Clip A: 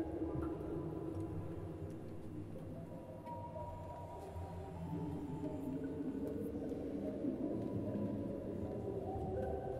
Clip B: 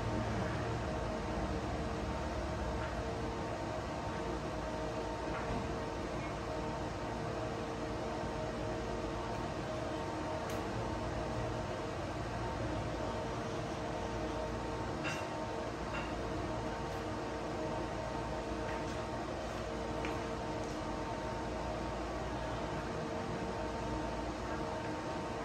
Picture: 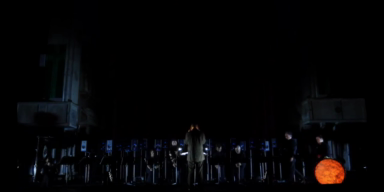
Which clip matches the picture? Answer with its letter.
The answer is A